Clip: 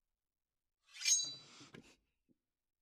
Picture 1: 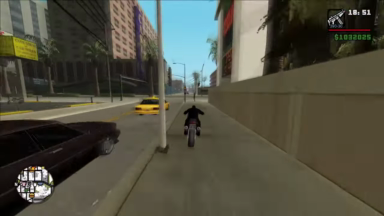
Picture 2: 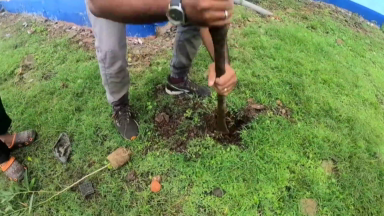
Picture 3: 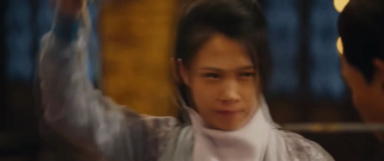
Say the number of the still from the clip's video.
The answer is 3